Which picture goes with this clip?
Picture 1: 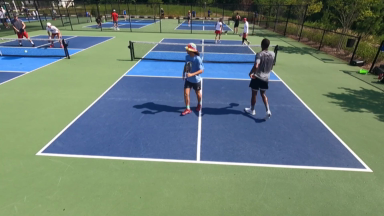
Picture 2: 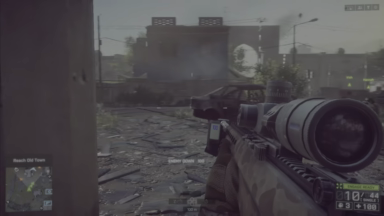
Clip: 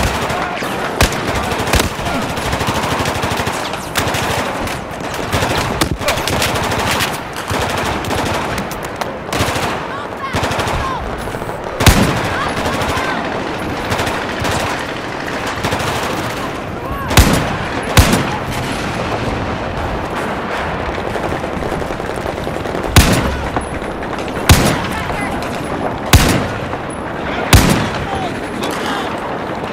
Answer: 2